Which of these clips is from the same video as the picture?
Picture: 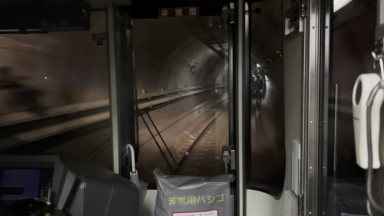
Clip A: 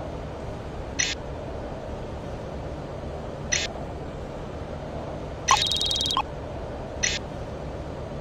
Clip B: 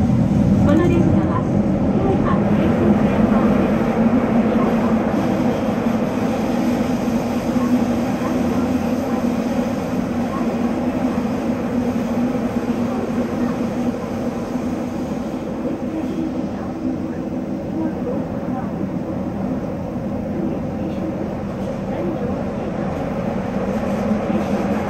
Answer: B